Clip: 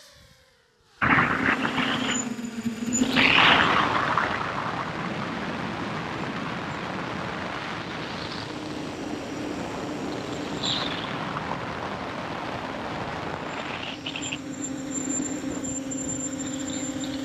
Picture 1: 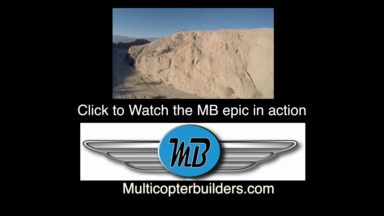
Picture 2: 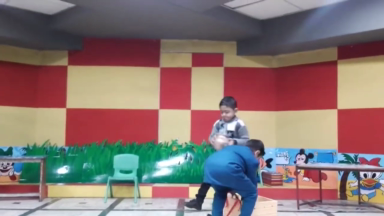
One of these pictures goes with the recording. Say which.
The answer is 1